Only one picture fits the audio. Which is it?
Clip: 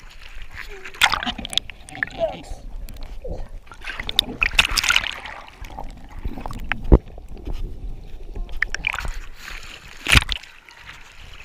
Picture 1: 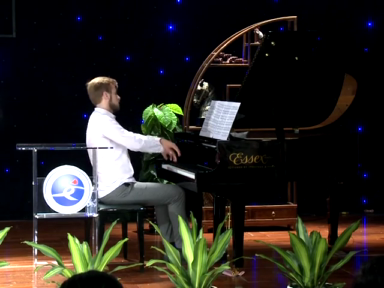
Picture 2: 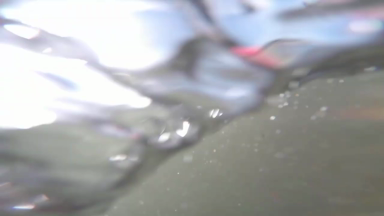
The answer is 2